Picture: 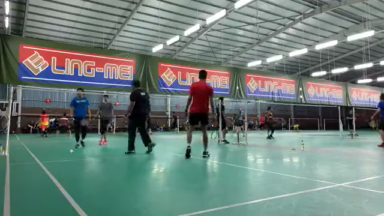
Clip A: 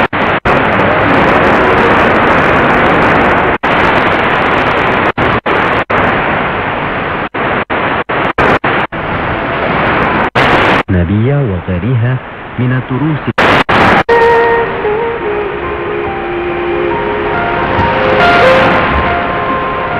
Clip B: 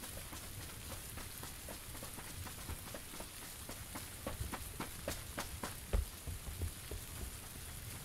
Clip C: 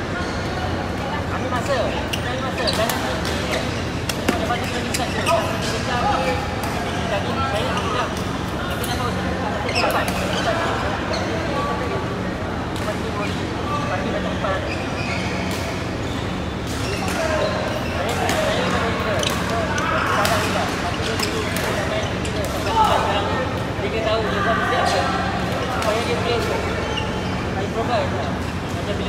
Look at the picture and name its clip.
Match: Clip C